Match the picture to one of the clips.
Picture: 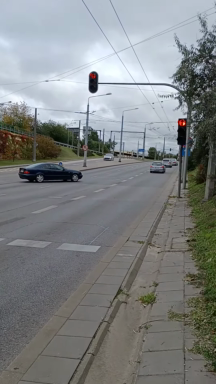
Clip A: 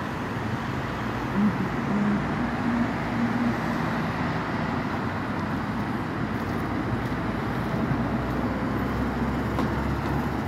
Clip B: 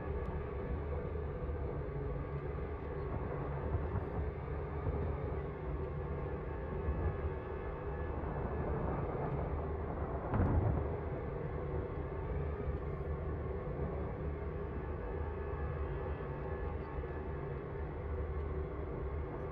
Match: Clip A